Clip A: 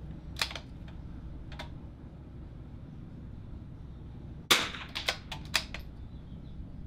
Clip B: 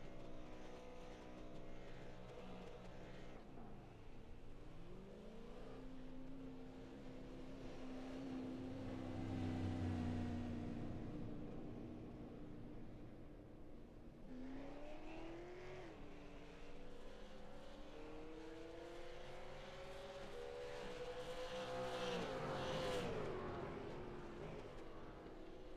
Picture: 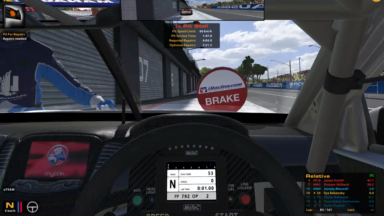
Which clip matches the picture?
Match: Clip B